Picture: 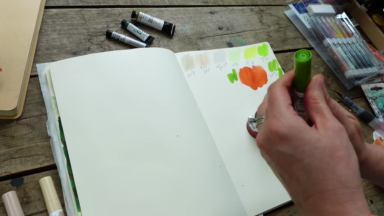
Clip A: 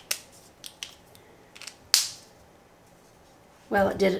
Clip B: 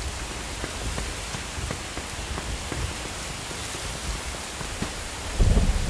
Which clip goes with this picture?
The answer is A